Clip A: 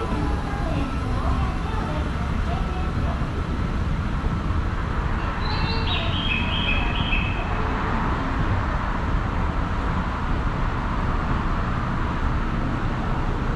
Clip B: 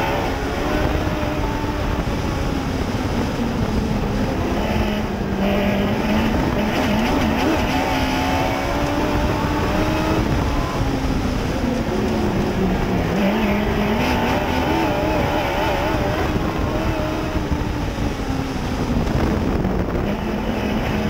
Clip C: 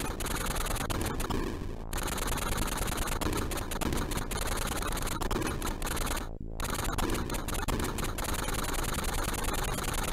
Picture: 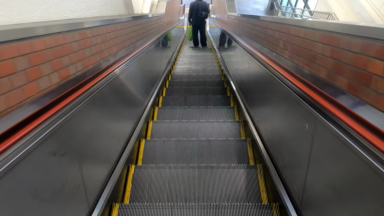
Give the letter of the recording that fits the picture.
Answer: A